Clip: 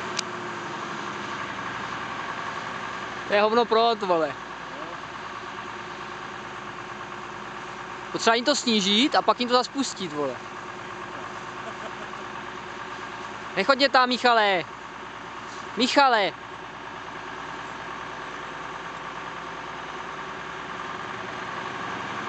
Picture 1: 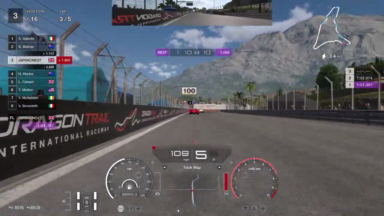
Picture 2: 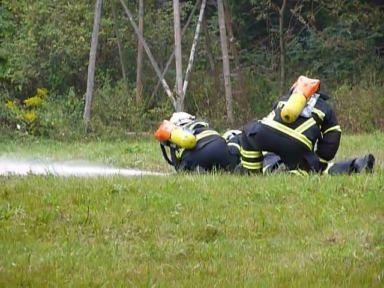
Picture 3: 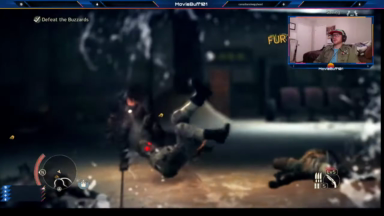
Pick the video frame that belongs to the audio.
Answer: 2